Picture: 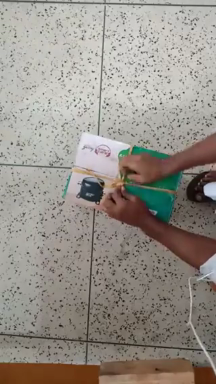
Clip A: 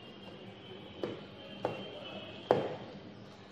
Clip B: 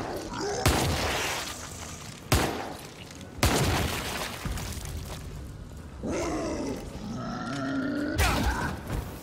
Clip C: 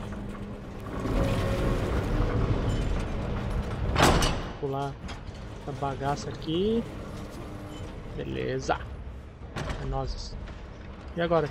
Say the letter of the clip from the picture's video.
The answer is A